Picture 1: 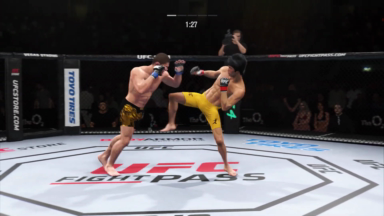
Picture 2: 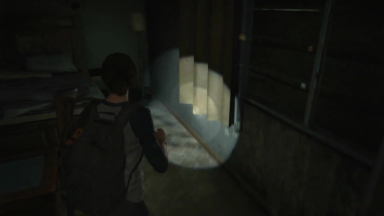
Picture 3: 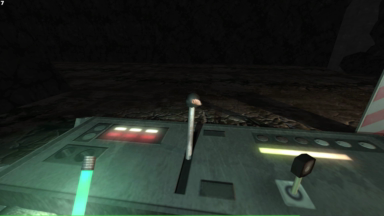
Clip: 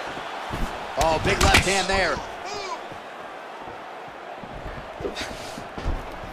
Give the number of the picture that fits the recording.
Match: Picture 1